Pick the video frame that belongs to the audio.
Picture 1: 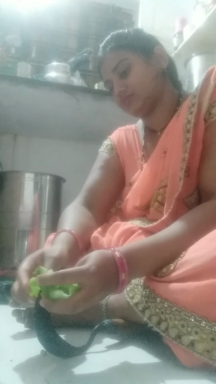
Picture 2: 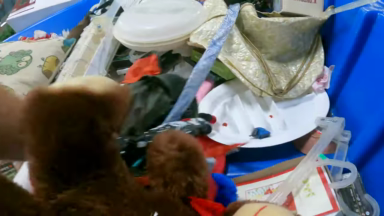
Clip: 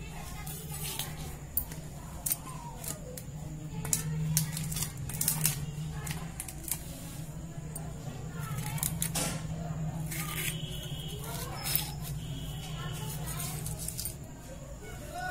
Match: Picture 1